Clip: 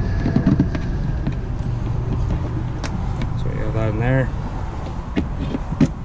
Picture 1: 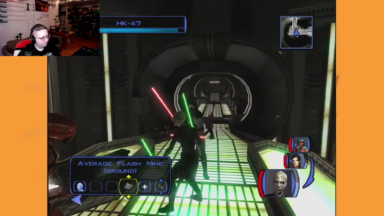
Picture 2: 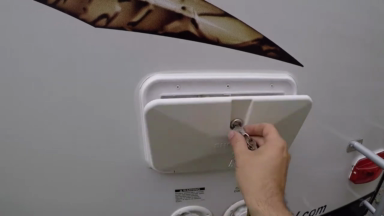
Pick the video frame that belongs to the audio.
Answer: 2